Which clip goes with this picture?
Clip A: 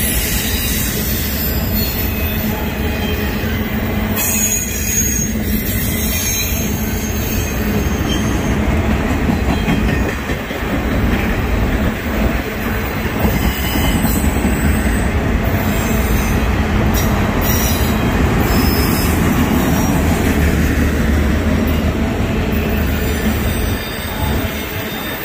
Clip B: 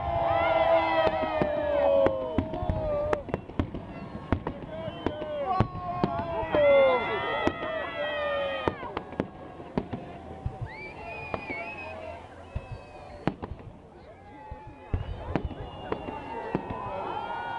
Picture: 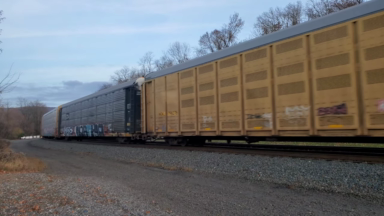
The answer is A